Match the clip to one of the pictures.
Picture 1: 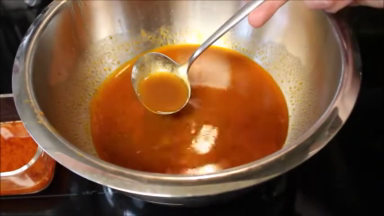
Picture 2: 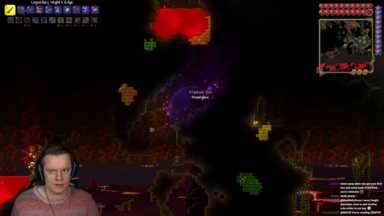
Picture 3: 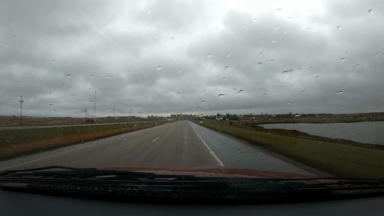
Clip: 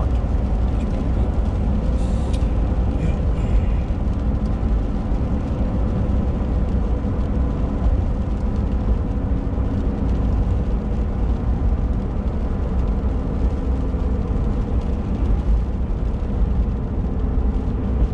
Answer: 3